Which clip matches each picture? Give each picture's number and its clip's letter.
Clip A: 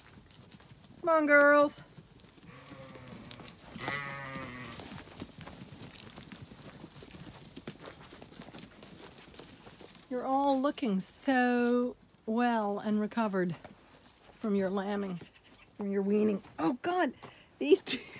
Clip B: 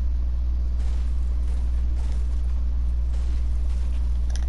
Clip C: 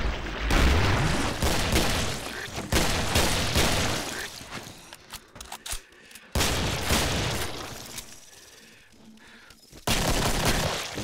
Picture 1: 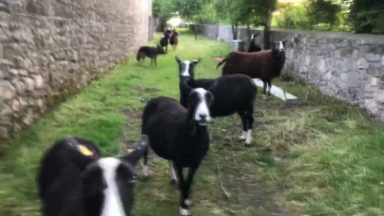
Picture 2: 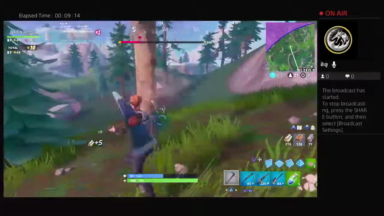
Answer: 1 A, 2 B